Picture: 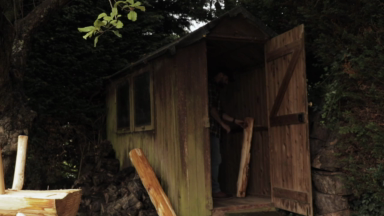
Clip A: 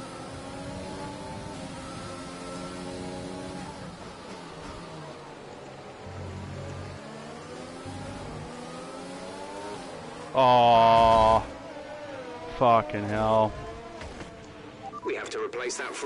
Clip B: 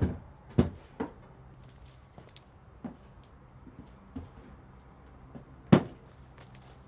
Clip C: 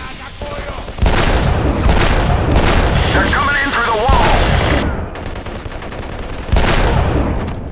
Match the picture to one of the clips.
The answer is B